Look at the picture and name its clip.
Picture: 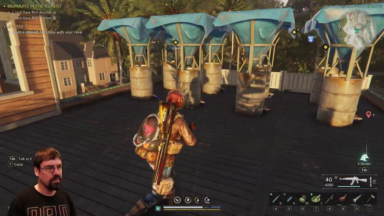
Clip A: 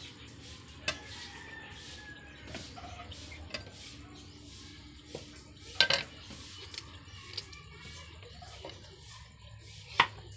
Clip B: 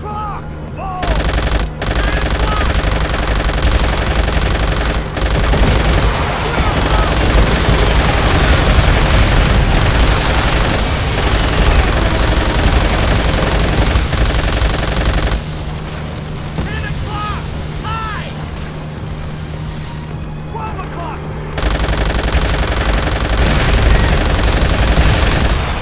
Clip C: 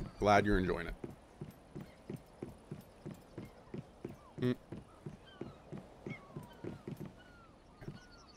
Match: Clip C